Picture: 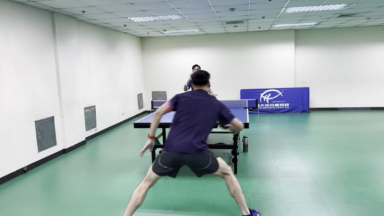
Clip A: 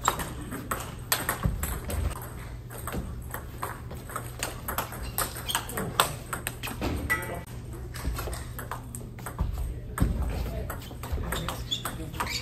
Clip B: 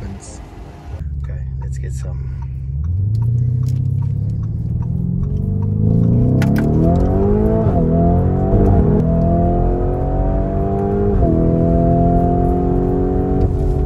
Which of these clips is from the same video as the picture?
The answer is A